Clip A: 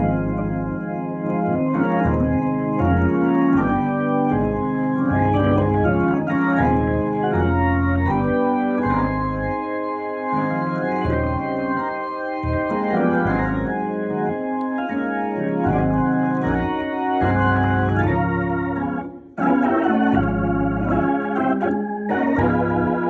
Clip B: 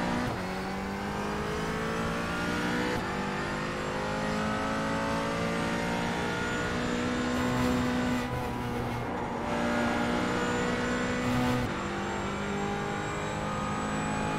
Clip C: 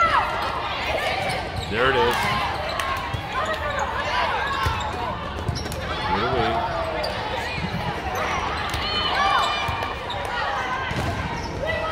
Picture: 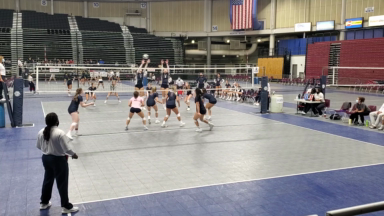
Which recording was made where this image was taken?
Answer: C